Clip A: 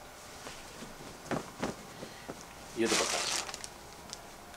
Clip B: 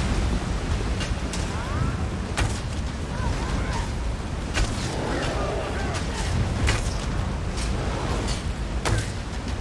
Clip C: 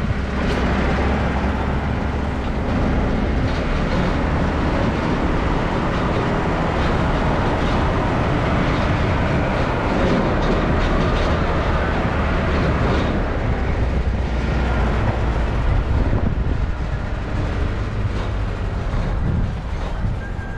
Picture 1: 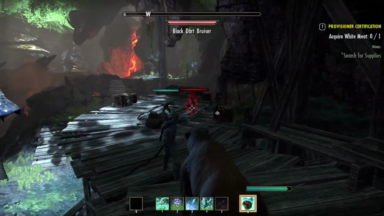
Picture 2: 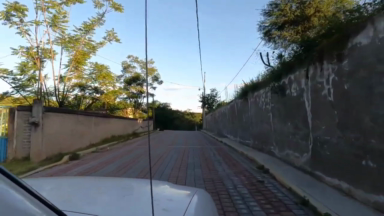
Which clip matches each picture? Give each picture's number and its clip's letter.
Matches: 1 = B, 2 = C